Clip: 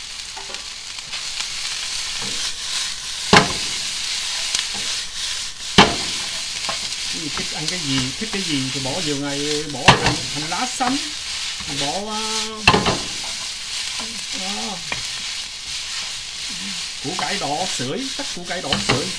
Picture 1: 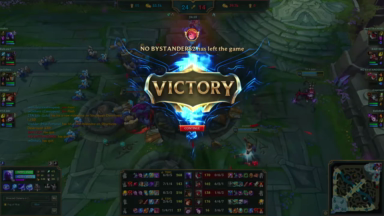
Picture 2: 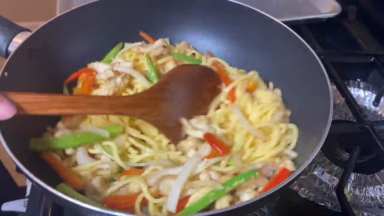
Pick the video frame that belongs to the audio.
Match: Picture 2